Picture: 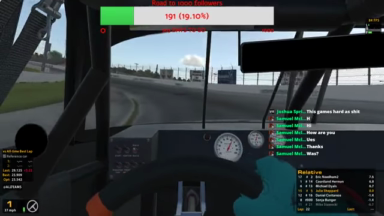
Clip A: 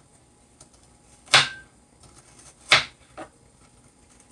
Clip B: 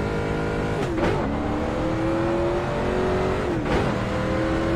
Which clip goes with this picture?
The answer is B